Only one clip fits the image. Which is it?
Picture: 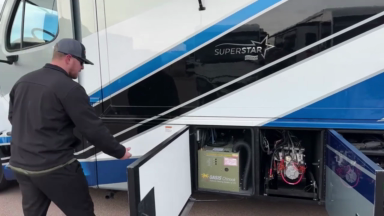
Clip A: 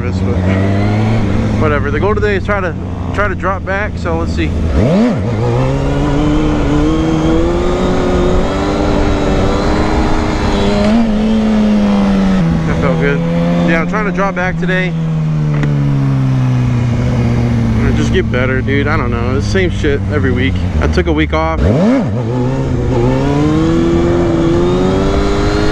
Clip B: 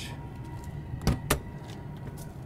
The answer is B